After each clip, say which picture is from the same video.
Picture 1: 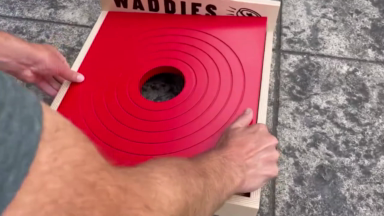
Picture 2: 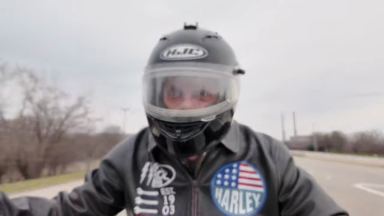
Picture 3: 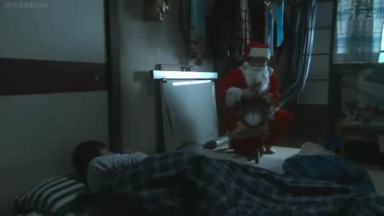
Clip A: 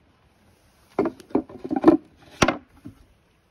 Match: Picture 1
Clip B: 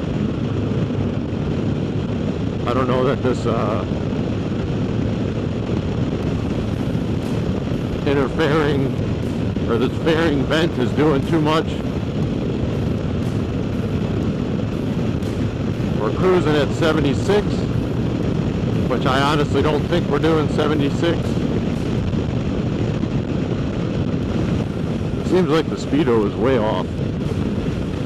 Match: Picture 2